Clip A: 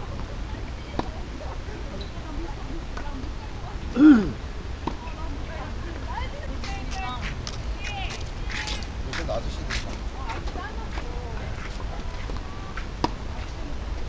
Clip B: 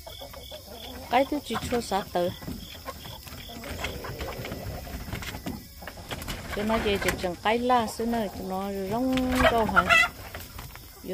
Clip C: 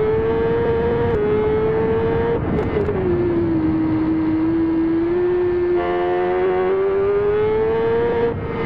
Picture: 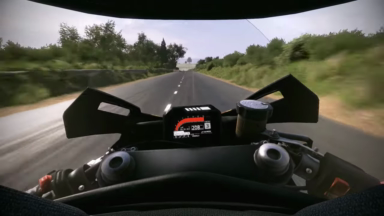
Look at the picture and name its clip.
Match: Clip C